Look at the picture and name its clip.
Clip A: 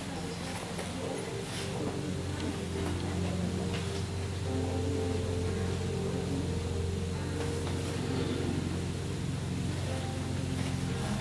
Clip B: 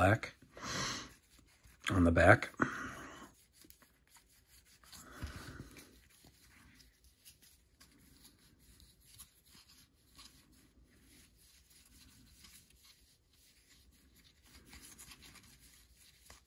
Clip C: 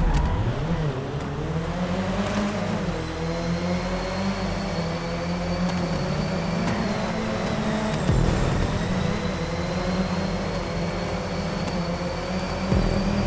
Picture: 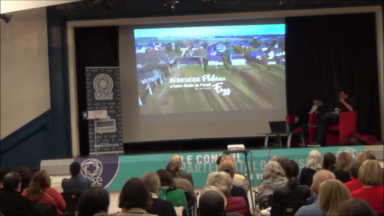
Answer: A